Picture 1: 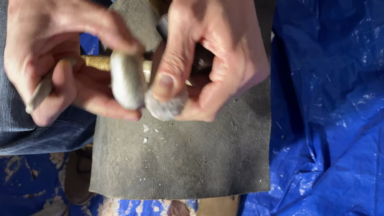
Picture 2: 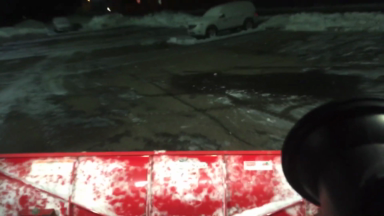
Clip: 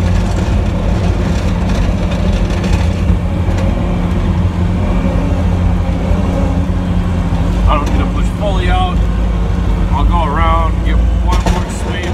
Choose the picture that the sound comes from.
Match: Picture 2